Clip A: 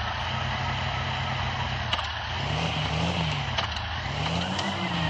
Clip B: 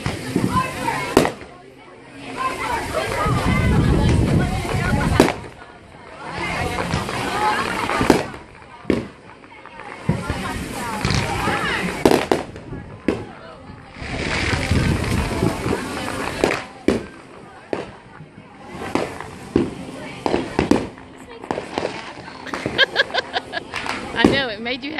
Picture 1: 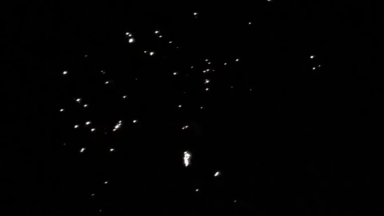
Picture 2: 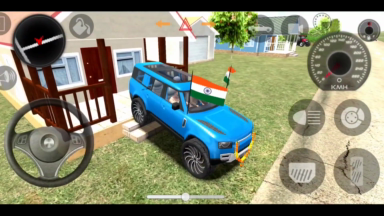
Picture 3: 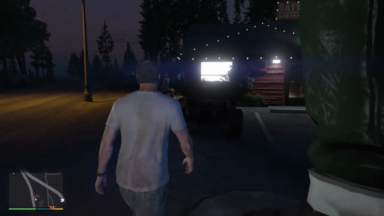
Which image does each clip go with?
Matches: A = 2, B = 1